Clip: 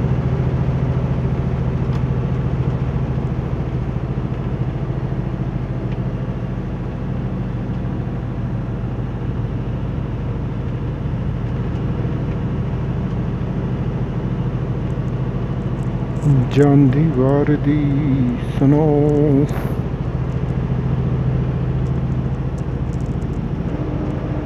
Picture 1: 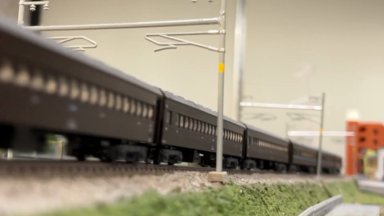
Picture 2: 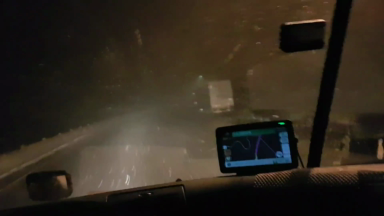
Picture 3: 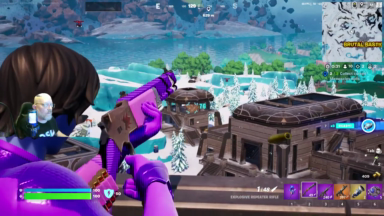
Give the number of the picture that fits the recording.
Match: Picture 2